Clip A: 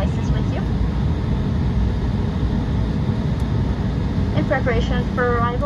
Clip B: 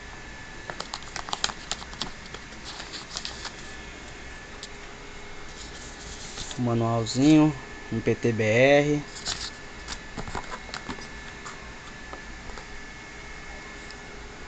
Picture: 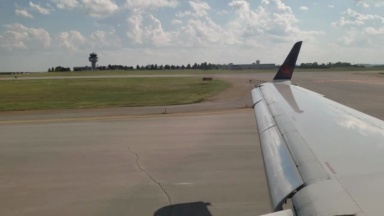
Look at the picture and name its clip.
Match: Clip A